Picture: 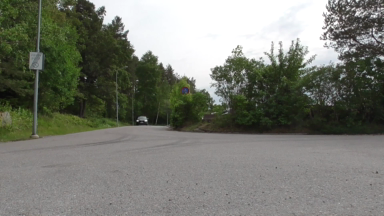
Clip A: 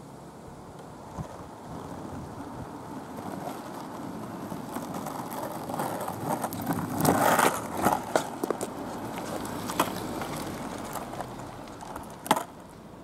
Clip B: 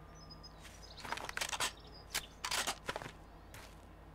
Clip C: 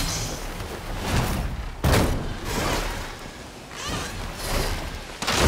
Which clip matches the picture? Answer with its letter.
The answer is A